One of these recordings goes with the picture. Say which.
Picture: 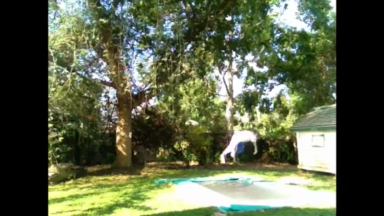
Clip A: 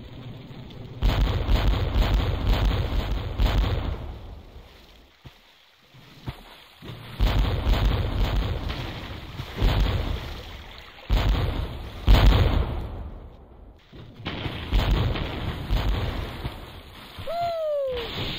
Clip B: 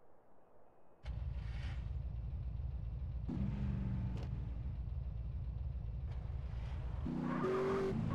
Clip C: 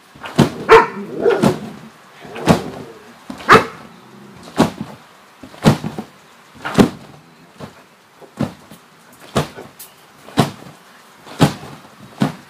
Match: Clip C